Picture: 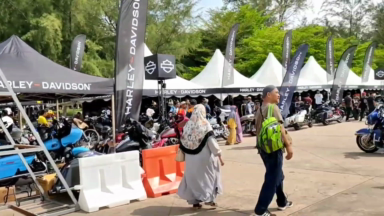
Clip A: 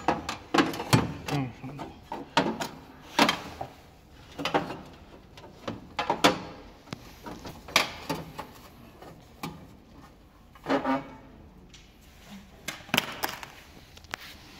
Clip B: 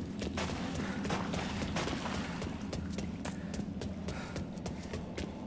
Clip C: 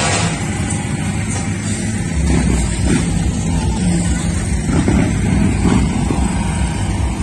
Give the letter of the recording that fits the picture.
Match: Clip C